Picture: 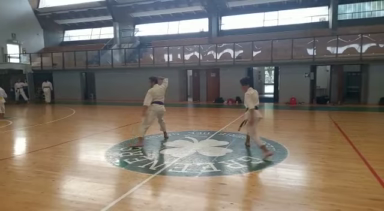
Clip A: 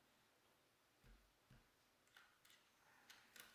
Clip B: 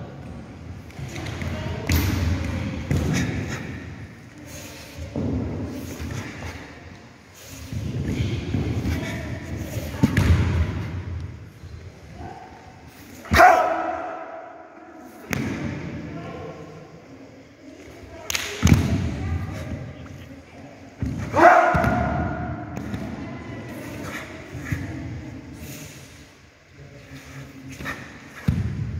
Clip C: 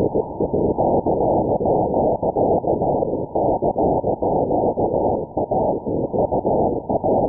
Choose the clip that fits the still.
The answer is B